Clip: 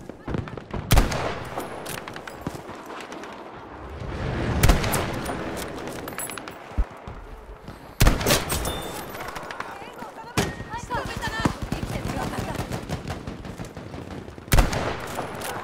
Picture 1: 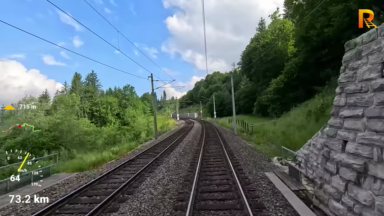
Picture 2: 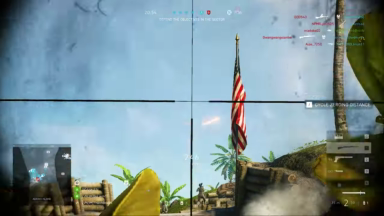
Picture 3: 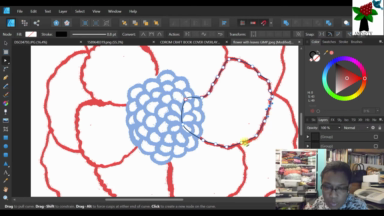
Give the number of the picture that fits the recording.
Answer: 2